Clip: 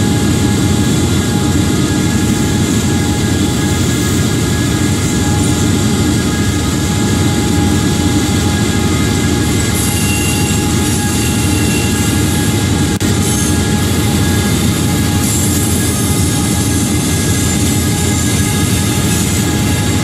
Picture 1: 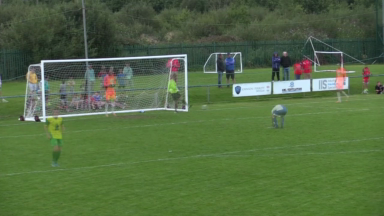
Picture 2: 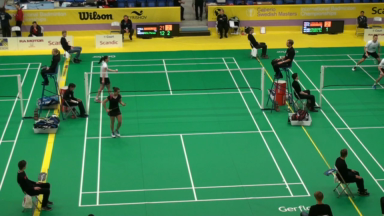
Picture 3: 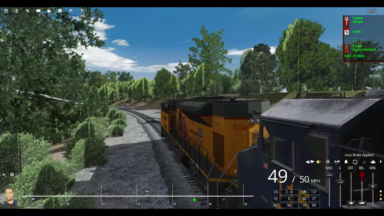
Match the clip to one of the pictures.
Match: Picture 3